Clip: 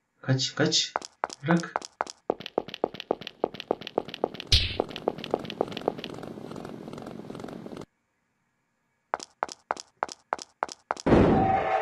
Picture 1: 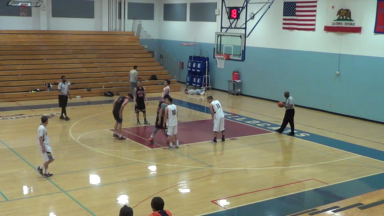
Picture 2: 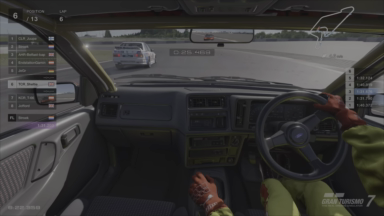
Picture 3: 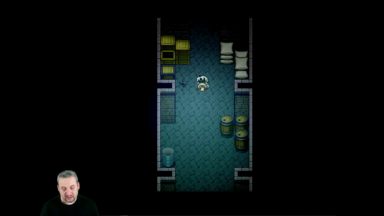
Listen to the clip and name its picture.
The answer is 3